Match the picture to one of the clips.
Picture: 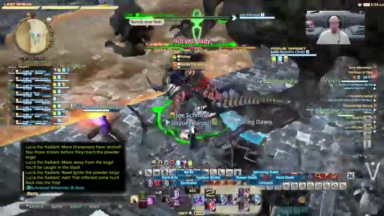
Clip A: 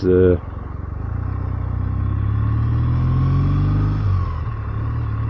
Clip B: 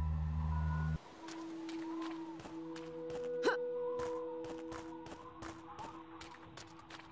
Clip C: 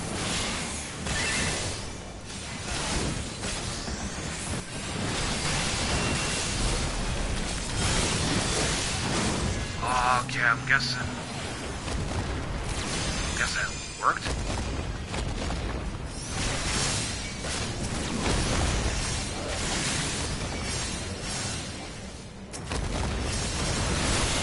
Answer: C